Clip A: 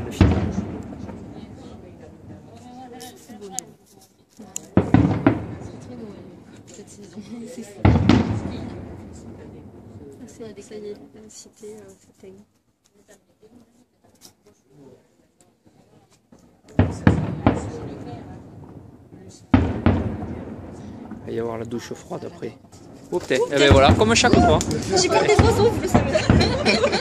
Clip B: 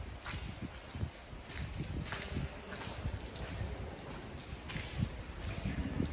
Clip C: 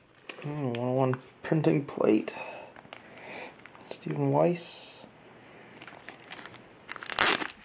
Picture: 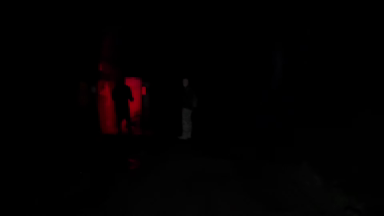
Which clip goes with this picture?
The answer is B